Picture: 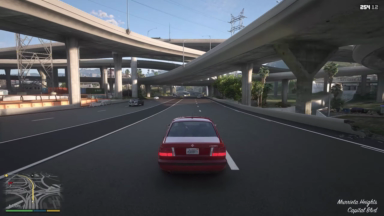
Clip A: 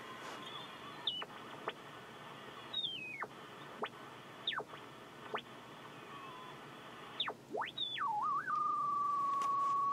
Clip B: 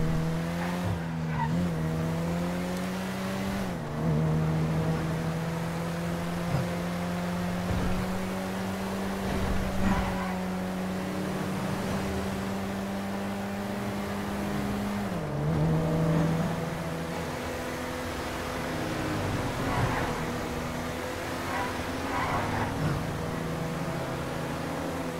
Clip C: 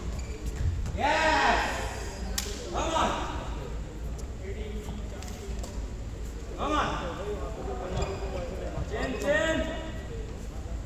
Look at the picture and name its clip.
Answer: B